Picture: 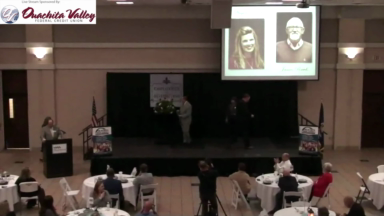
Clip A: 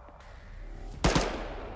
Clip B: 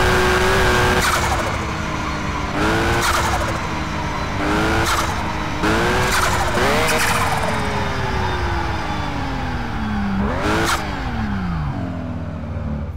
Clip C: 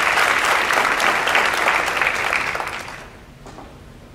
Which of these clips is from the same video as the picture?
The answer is C